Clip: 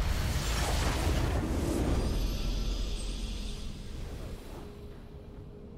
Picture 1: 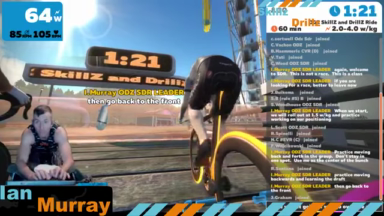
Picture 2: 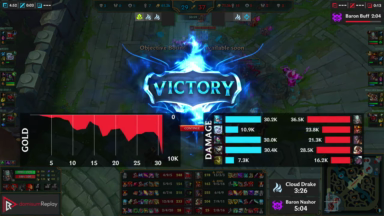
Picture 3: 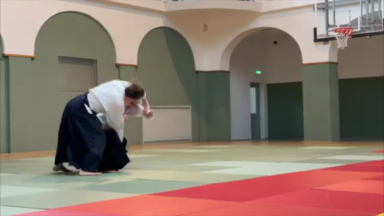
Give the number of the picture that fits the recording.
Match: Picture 2